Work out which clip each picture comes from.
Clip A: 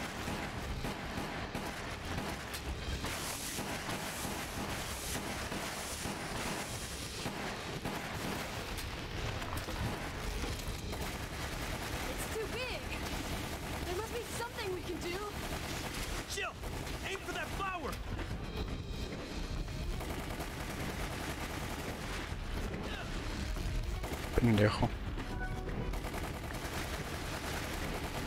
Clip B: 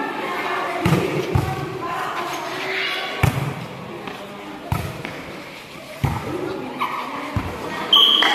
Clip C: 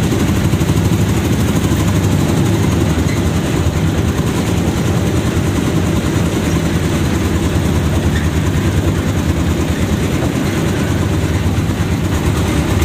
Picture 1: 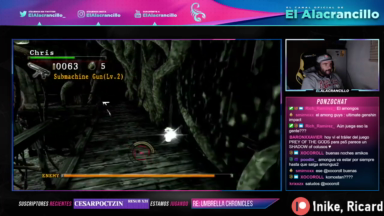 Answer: A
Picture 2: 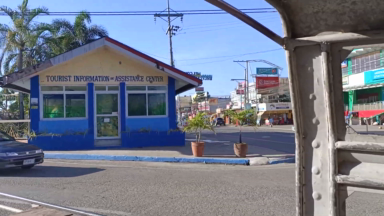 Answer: C